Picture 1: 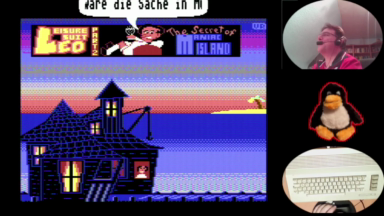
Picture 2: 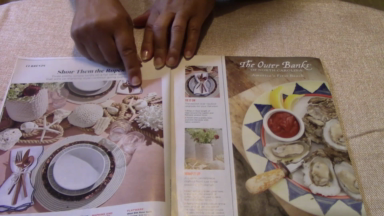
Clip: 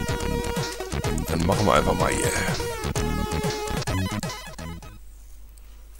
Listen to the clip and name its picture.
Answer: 1